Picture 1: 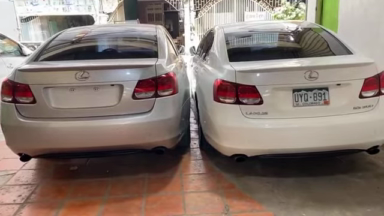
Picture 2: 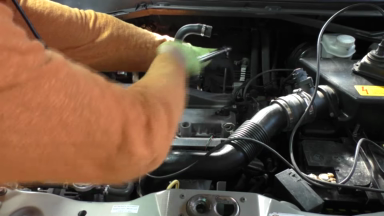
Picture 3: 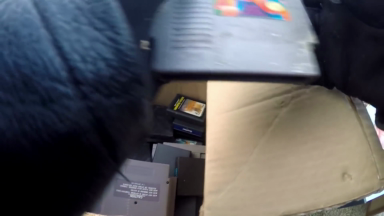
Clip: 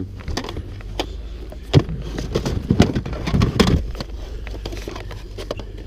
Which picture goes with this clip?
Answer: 3